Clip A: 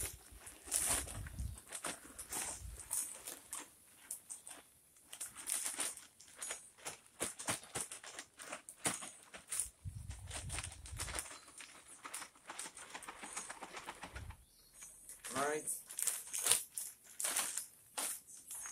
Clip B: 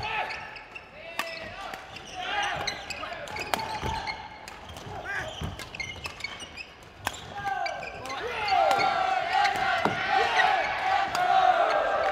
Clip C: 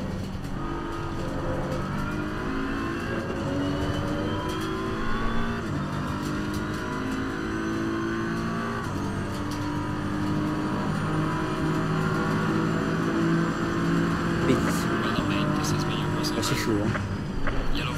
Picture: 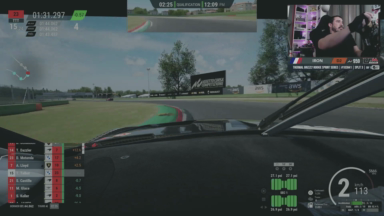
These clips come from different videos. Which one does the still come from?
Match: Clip C